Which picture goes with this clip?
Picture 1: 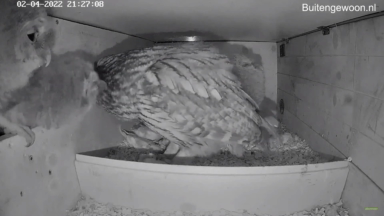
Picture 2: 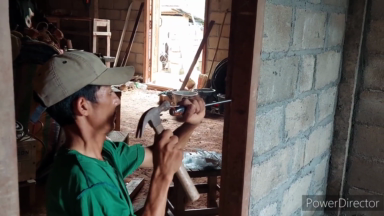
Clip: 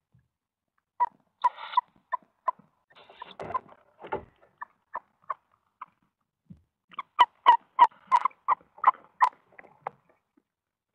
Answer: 1